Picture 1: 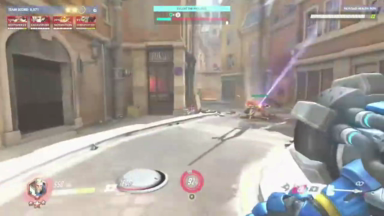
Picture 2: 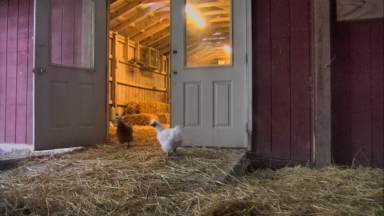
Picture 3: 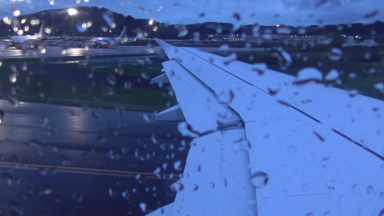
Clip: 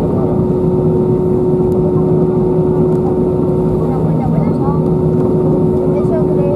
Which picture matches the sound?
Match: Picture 3